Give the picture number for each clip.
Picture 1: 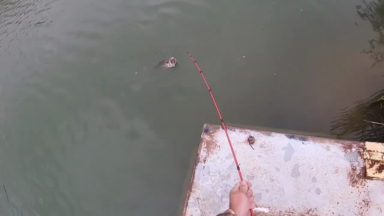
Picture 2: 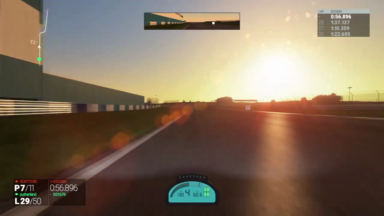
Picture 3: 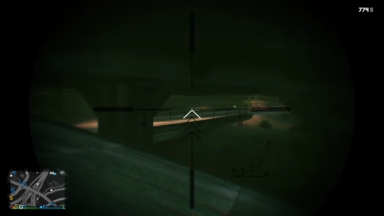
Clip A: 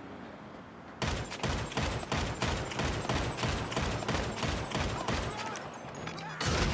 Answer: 3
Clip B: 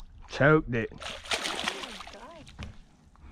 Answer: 1